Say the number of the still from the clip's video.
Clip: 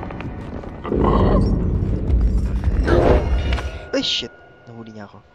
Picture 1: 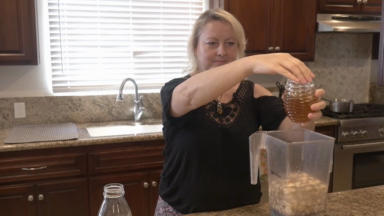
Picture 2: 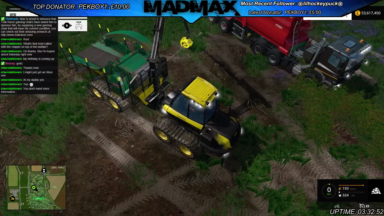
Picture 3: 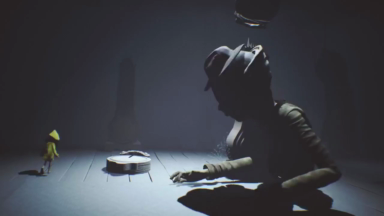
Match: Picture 3